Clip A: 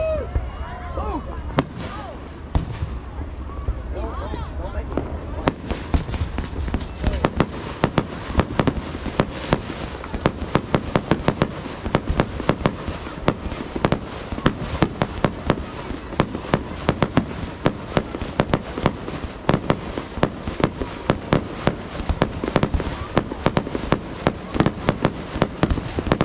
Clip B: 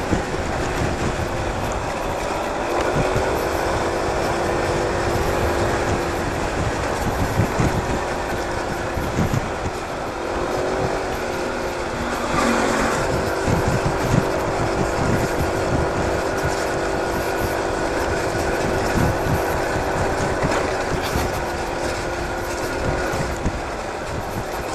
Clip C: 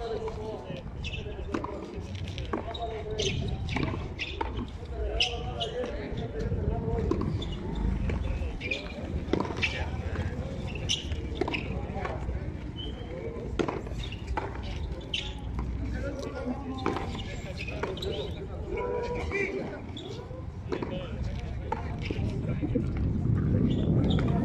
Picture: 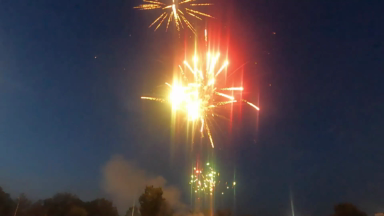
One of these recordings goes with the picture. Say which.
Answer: A